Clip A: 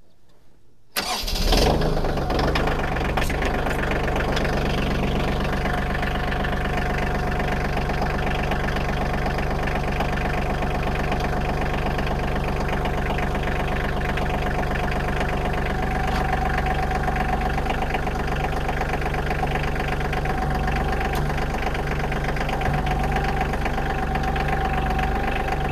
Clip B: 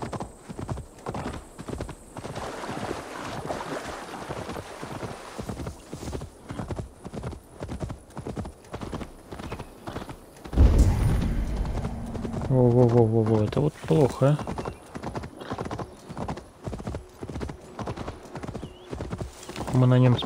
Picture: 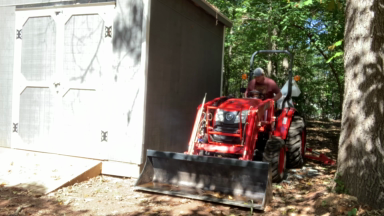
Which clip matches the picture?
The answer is A